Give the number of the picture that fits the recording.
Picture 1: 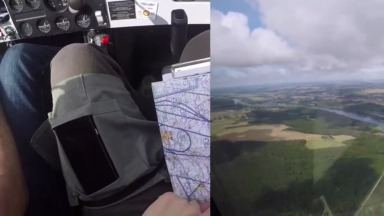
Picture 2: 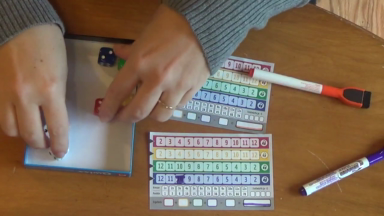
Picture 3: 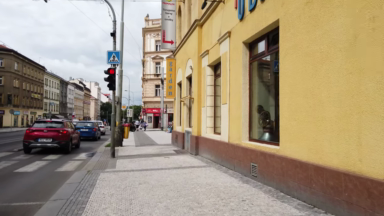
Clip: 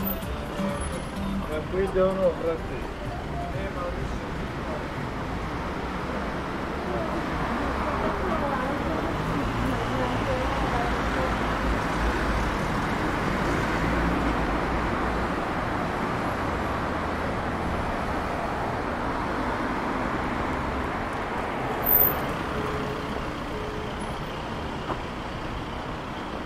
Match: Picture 3